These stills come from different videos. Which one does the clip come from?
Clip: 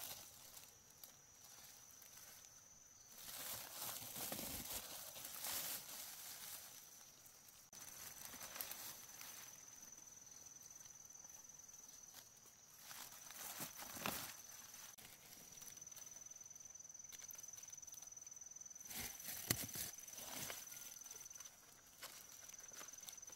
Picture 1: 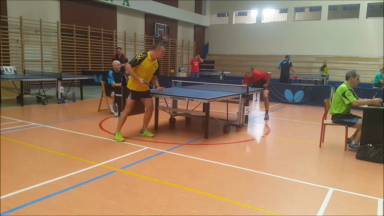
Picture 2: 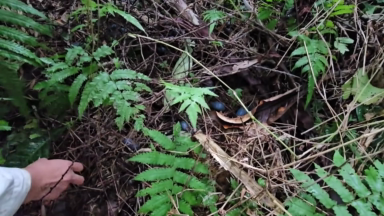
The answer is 2